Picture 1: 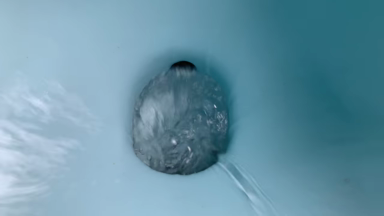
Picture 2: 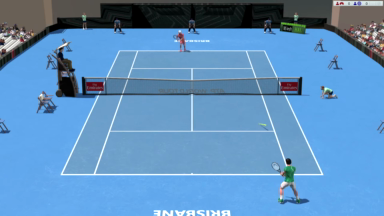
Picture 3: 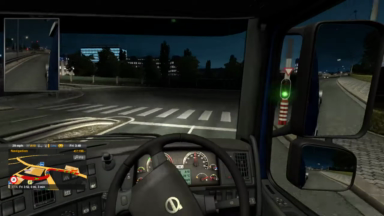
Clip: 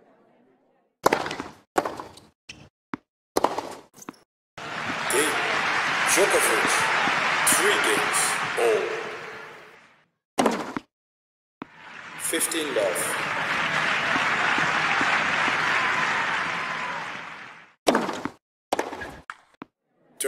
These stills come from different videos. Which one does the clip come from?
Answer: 2